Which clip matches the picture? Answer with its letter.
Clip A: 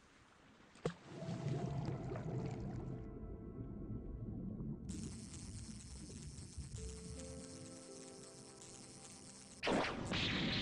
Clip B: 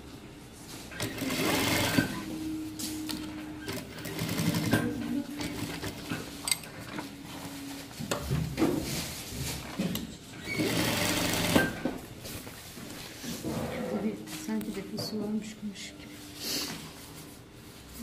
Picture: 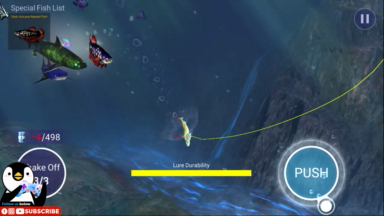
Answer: A